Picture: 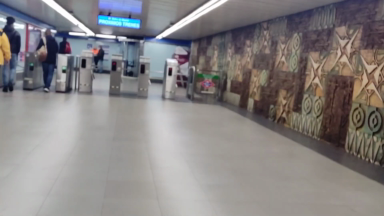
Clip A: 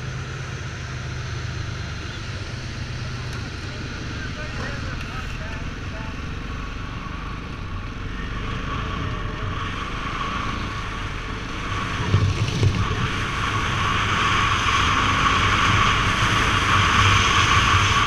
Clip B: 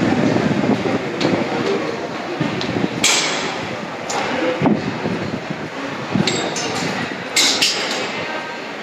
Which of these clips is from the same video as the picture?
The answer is B